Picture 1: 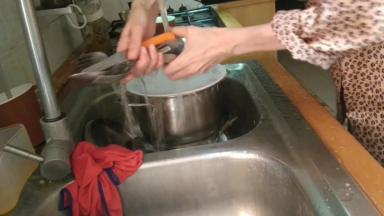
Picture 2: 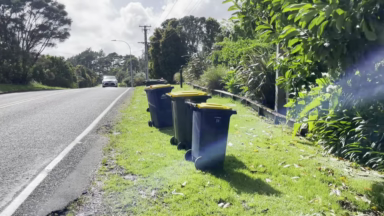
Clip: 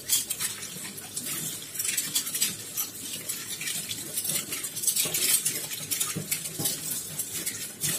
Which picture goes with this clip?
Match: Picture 1